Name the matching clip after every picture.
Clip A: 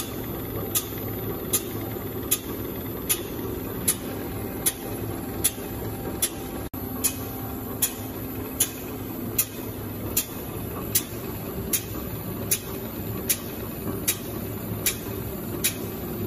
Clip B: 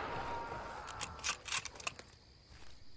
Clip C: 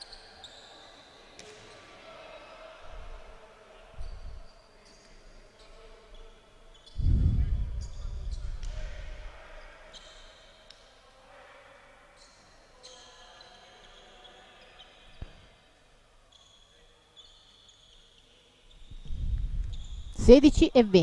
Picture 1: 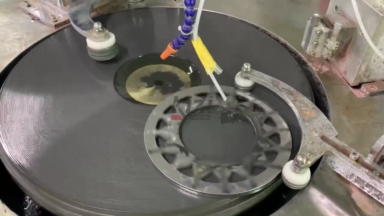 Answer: A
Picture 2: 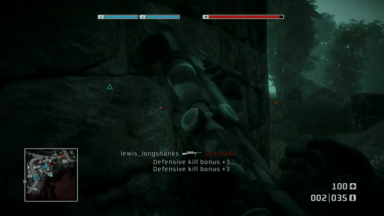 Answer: B